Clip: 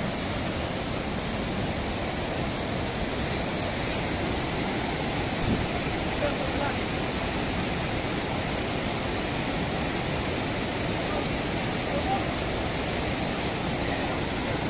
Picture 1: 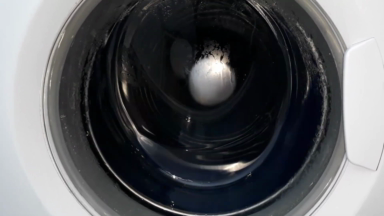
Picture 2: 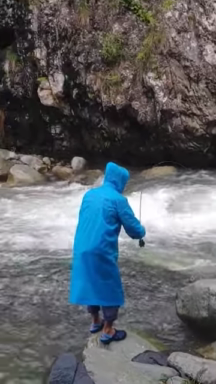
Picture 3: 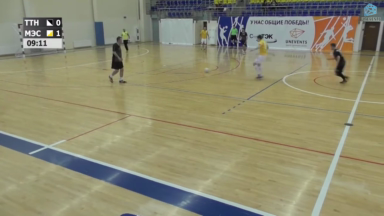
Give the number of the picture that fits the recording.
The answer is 2